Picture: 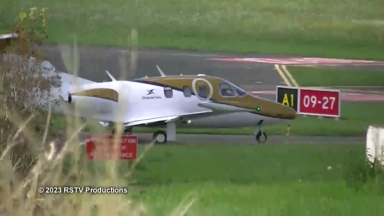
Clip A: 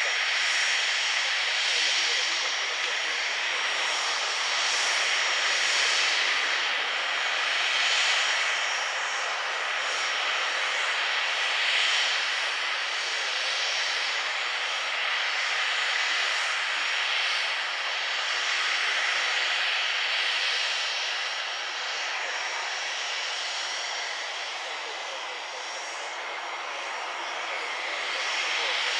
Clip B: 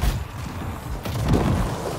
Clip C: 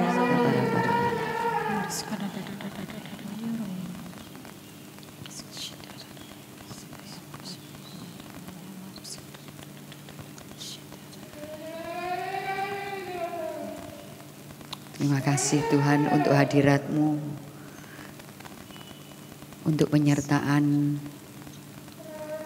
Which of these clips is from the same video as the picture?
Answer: A